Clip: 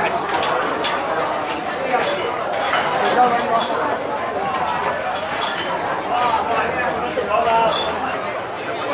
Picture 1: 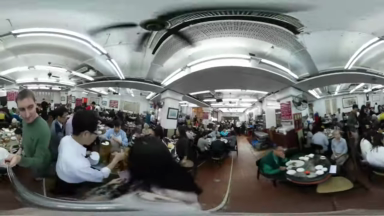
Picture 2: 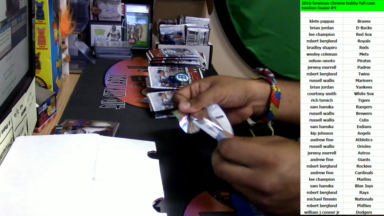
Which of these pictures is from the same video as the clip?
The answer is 1